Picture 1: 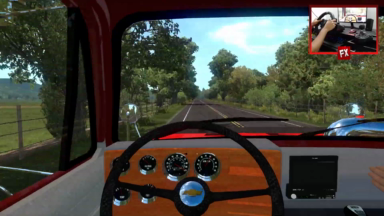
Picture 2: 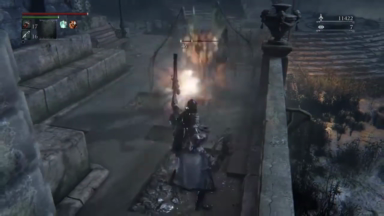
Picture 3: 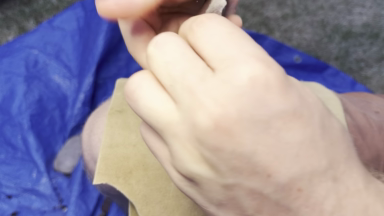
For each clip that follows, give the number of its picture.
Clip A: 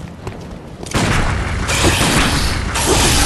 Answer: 2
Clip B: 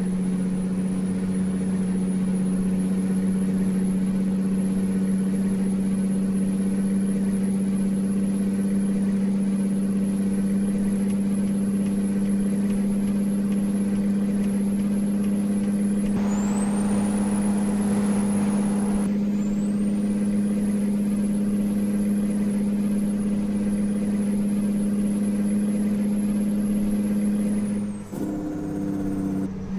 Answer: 1